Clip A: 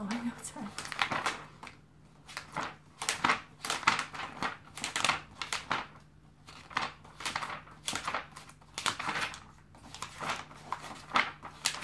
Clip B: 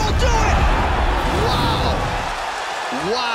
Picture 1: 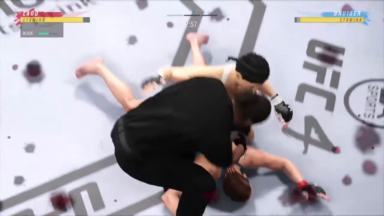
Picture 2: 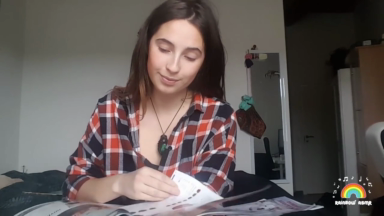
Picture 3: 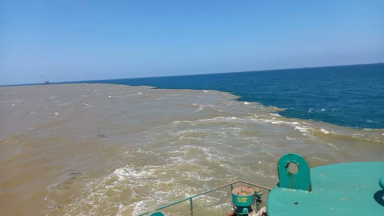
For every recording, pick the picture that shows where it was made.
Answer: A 2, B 1